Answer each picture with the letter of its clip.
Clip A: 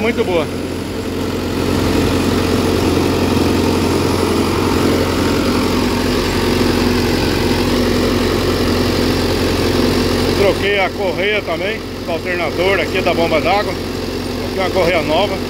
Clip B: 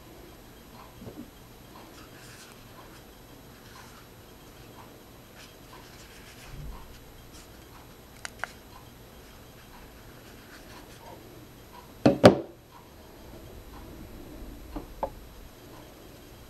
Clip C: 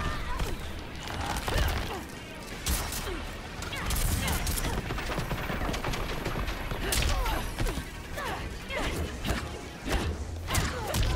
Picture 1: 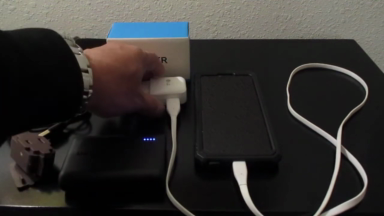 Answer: B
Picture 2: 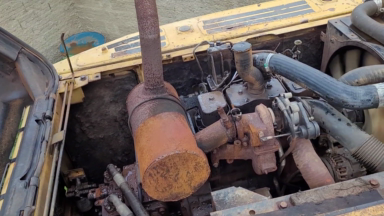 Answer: A